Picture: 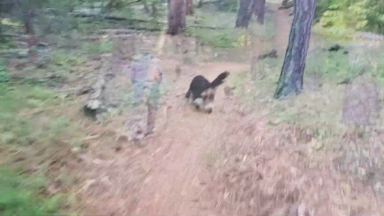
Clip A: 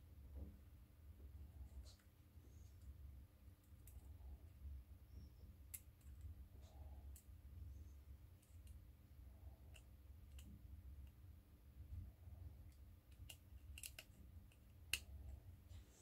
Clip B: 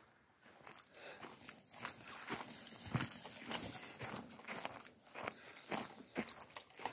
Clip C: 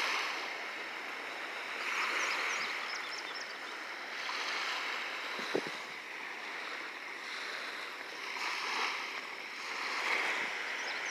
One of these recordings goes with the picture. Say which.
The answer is B